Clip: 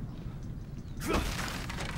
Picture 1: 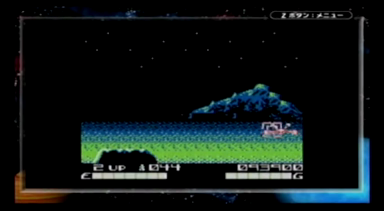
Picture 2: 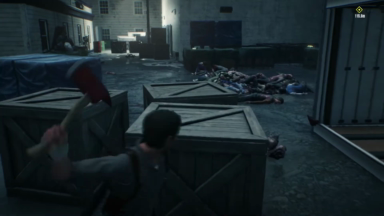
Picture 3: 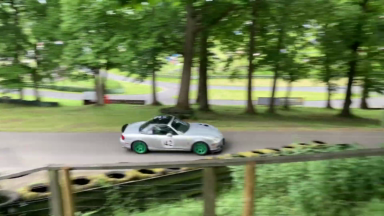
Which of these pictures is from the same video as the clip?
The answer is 2